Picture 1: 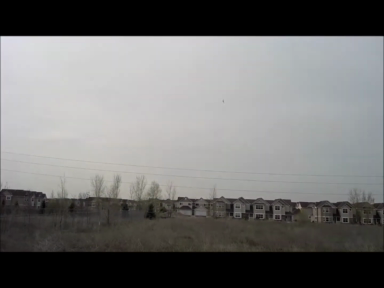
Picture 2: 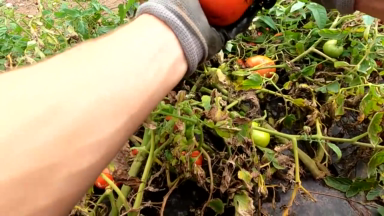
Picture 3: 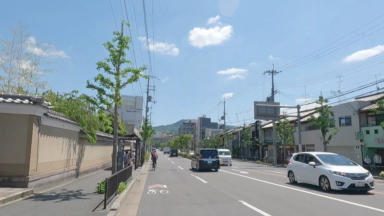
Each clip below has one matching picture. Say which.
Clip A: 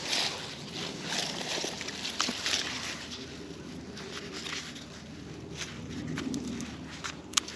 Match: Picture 2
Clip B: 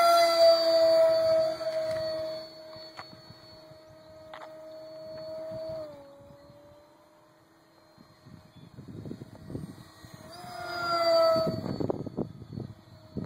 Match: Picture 1